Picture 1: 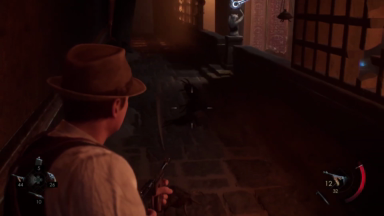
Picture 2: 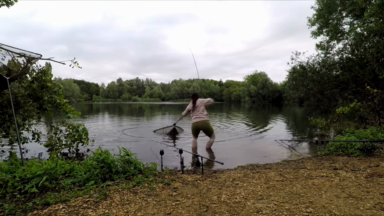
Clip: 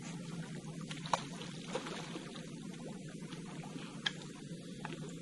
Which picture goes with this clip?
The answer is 2